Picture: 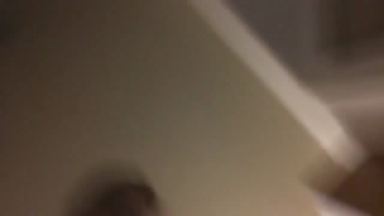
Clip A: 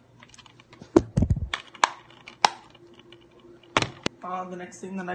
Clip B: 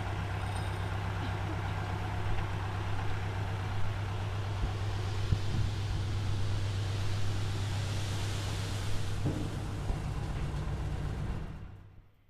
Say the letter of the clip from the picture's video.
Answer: A